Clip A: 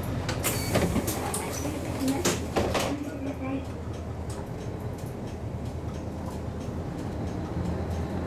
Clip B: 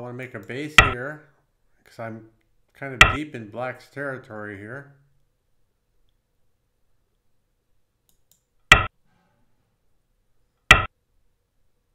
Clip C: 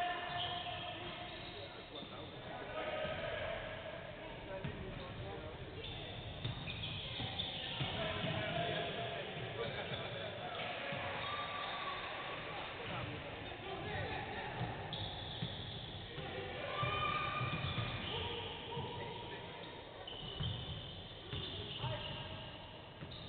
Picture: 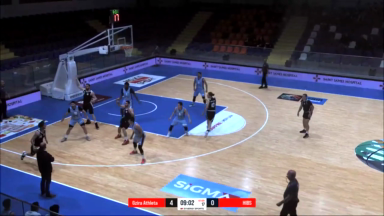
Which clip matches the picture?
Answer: C